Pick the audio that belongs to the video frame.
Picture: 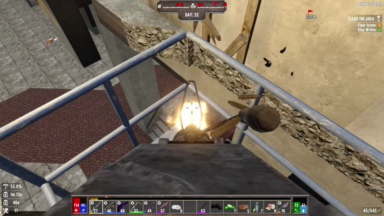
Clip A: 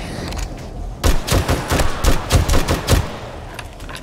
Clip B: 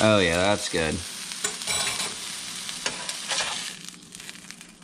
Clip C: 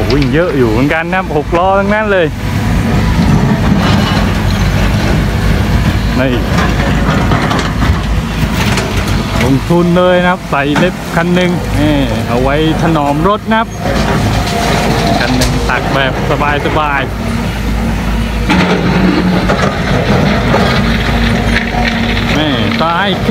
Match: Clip A